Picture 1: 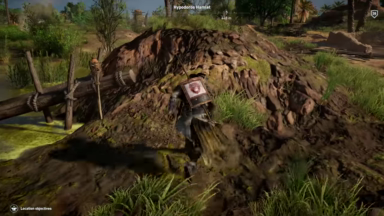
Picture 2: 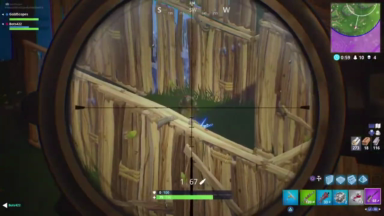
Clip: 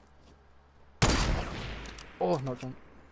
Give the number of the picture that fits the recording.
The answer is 2